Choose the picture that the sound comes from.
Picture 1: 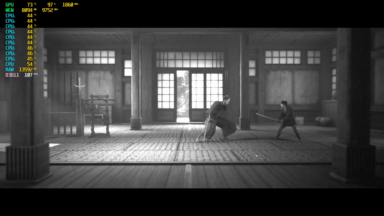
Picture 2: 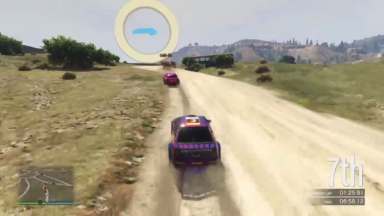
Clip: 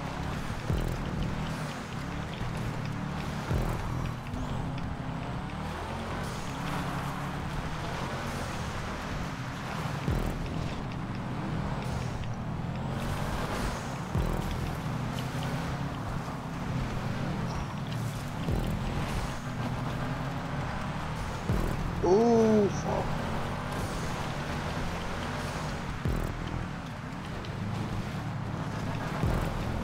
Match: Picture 2